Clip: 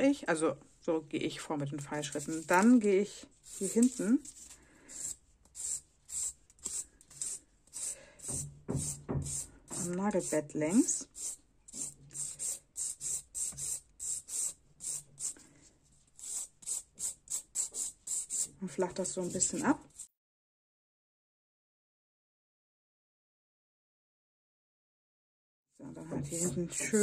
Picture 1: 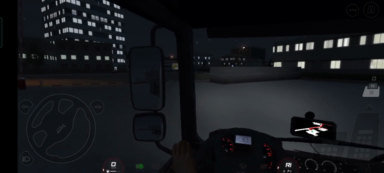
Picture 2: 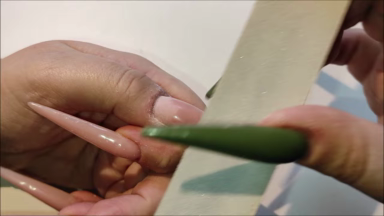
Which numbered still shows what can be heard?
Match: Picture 2